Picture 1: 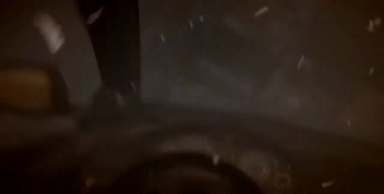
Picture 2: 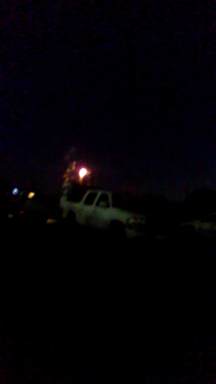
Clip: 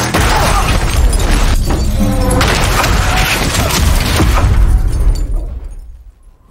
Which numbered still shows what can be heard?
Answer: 1